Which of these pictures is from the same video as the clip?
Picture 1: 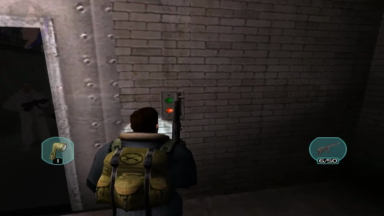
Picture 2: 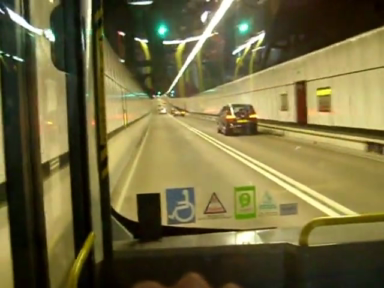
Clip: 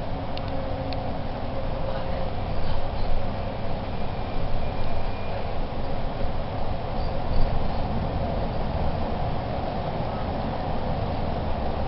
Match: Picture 2